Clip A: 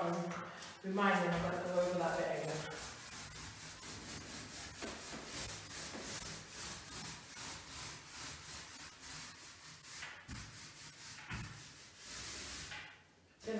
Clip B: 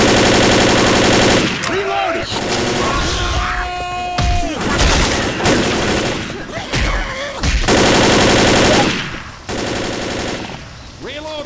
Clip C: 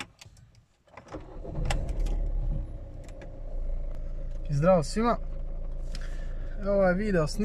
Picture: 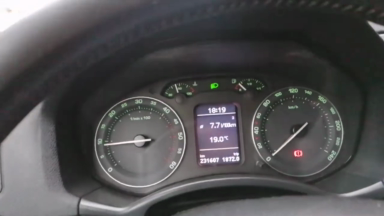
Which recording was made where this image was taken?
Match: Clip C